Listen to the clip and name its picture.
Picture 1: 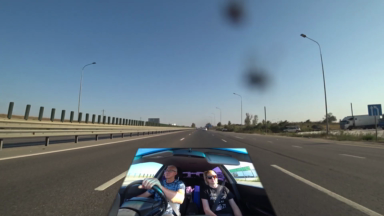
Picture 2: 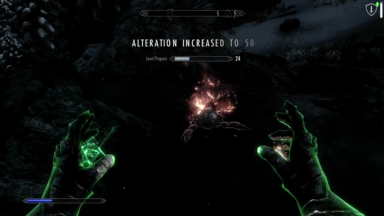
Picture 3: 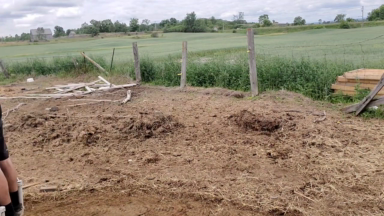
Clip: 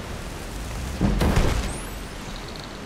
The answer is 2